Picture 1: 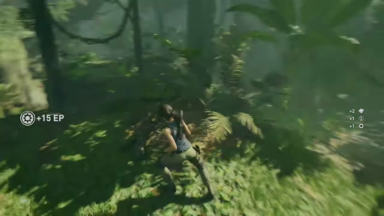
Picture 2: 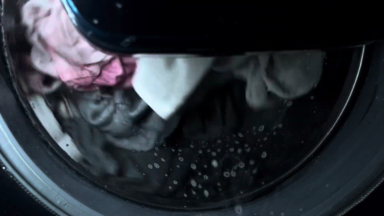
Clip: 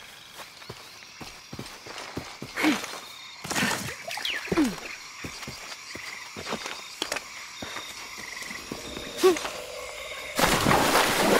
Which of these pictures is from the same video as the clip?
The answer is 1